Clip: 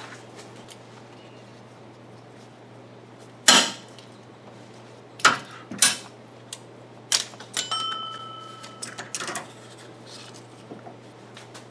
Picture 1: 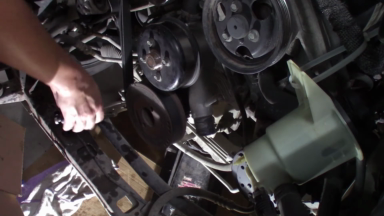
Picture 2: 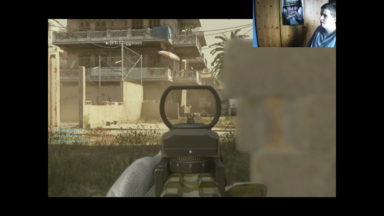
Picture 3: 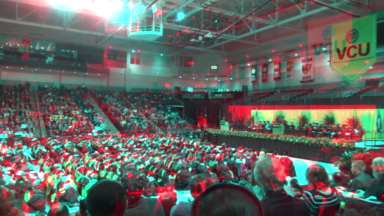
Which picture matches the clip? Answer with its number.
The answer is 1